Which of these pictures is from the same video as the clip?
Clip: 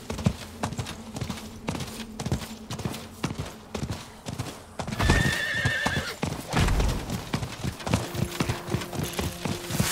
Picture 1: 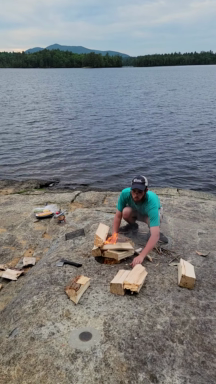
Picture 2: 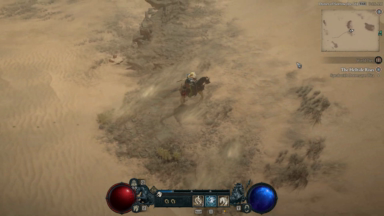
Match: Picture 2